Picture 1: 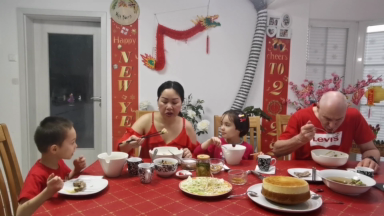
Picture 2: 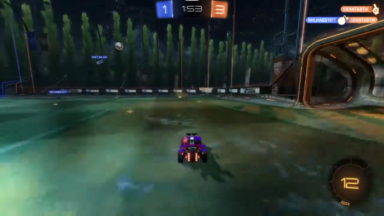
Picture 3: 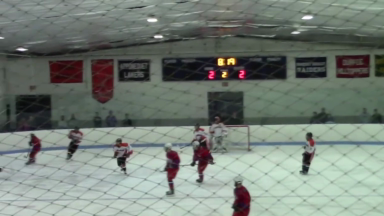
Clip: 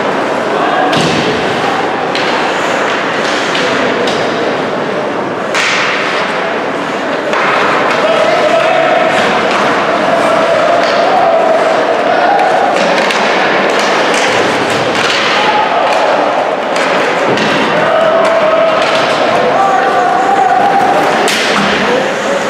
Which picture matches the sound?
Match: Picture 3